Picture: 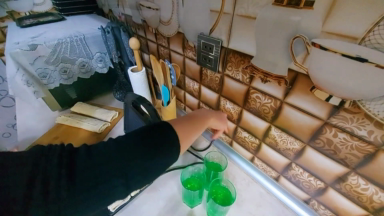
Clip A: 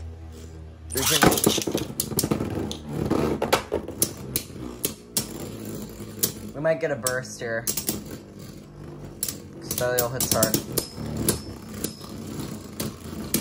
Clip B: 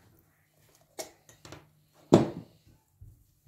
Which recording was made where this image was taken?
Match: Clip B